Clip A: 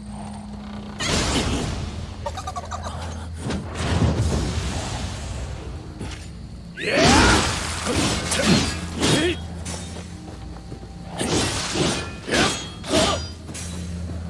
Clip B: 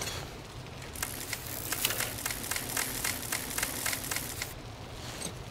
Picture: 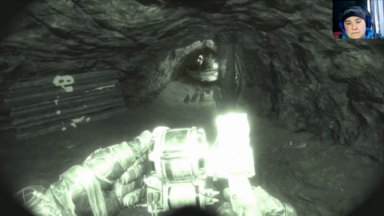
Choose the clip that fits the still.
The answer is B